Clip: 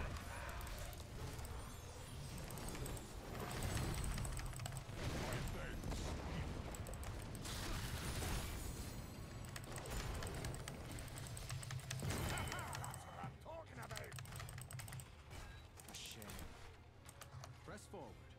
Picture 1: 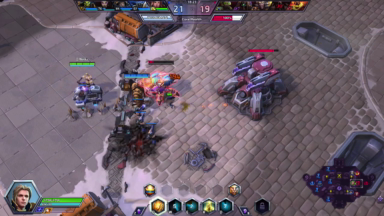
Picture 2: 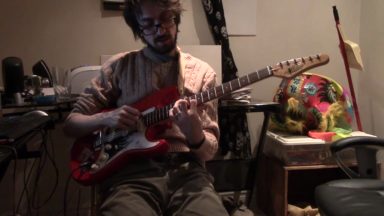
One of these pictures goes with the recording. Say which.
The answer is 1